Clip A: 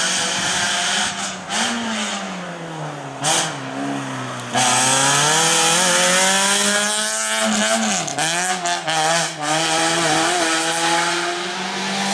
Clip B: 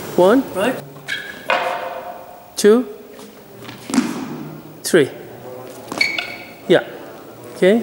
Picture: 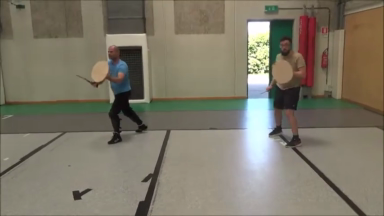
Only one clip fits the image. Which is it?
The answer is B